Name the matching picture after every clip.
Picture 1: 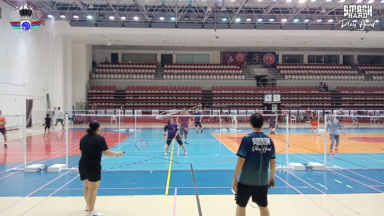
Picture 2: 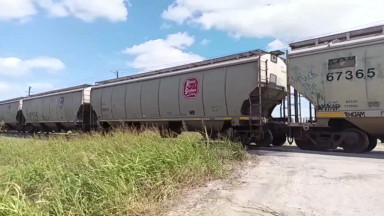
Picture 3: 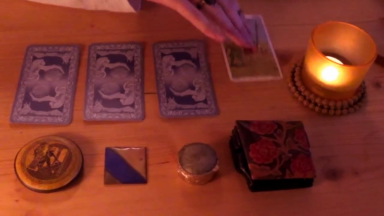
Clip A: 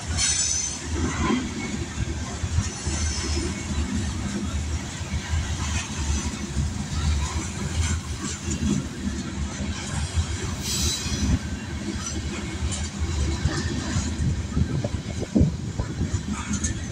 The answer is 2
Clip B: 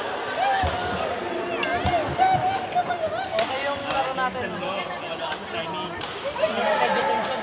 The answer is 1